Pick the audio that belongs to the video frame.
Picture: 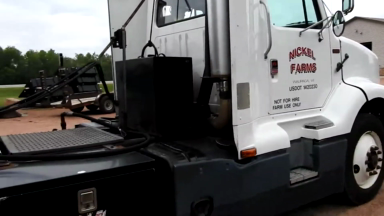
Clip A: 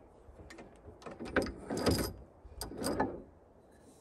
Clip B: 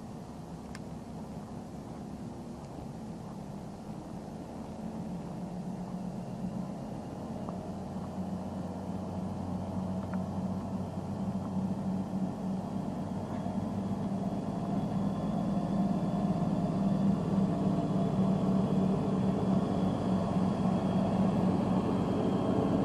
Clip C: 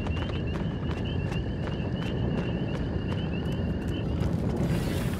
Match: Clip B